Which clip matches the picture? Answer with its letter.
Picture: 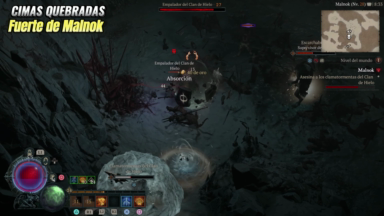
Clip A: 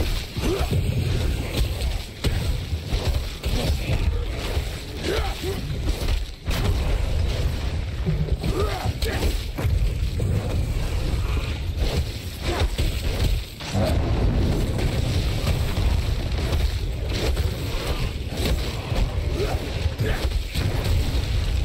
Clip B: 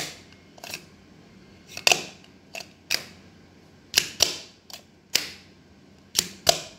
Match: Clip A